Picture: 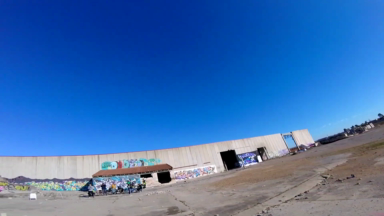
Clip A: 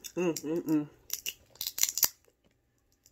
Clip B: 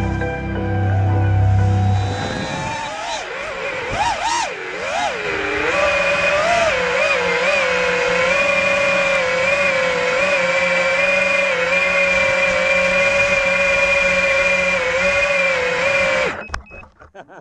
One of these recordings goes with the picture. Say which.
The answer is B